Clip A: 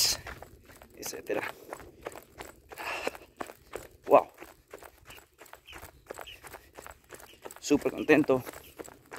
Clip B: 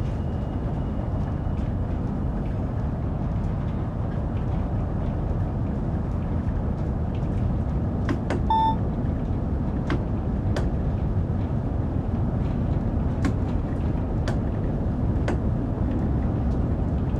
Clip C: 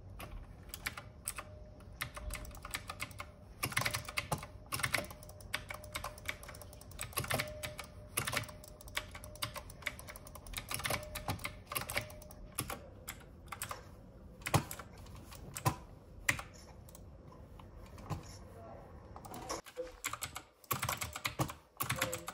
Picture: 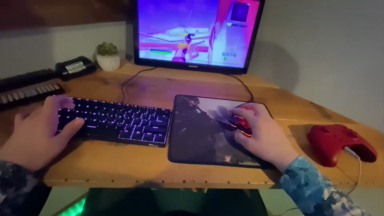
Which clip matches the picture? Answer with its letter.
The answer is C